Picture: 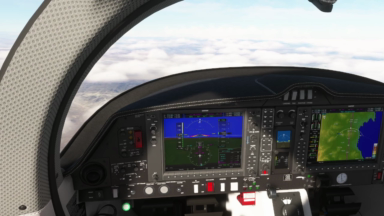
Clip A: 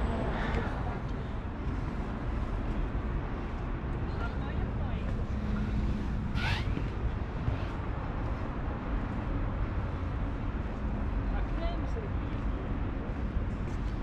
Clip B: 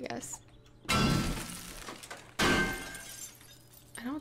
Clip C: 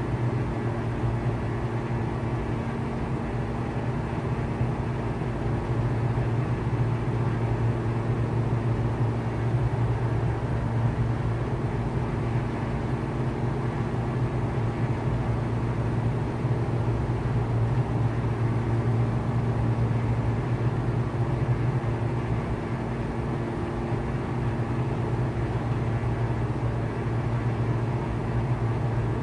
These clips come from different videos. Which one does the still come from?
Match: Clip C